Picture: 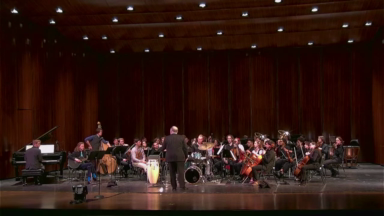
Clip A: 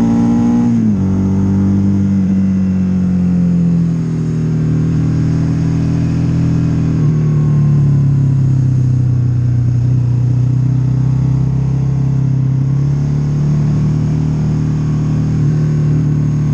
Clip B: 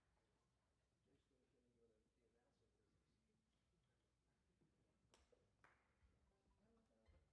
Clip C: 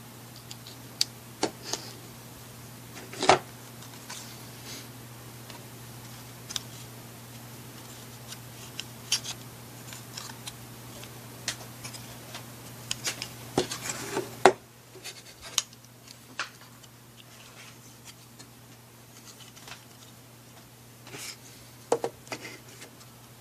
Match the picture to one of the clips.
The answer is B